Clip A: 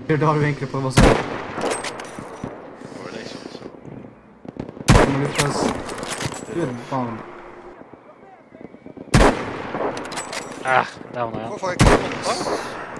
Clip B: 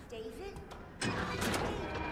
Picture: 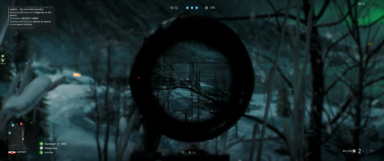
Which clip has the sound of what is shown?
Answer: A